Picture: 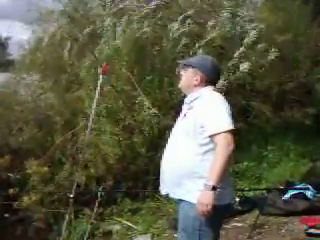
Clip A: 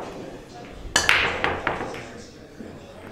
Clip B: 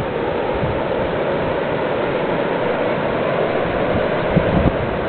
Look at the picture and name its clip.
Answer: B